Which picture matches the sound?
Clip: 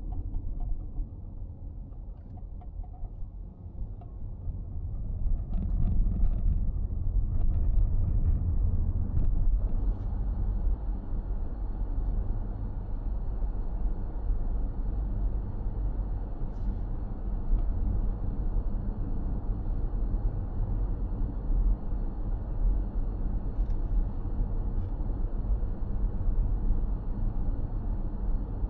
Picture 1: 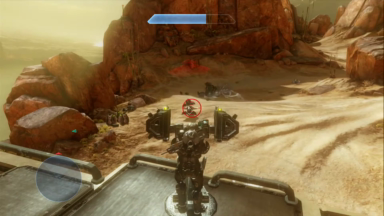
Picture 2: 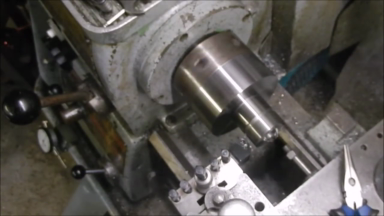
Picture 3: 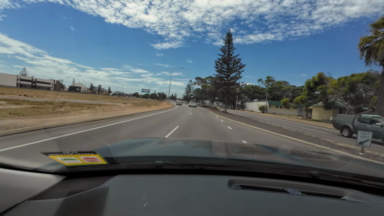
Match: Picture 3